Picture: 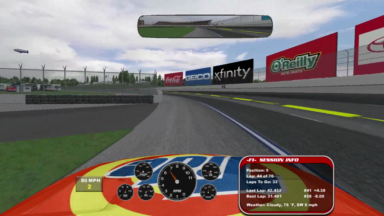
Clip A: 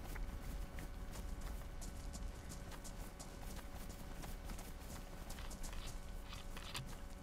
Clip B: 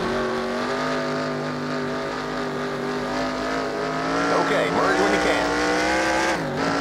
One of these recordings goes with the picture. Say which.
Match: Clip B